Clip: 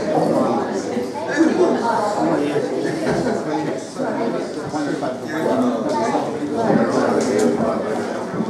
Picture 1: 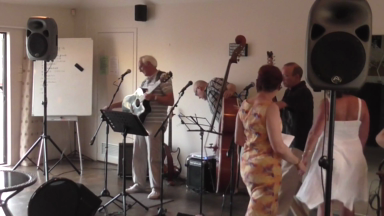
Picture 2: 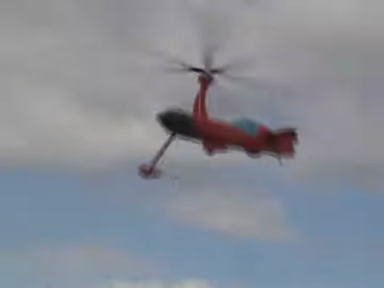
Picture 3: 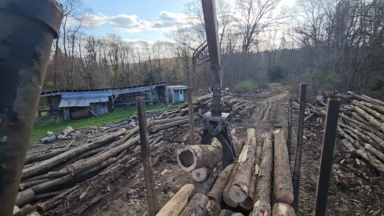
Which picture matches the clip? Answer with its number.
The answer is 1